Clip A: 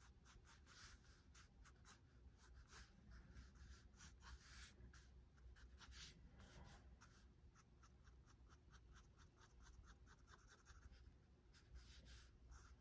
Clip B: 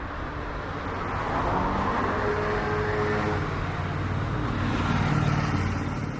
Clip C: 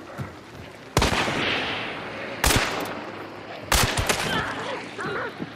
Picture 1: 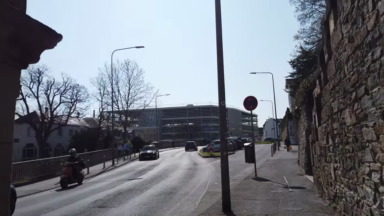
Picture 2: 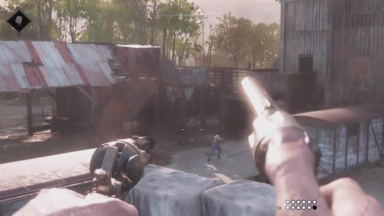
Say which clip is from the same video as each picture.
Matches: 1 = B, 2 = C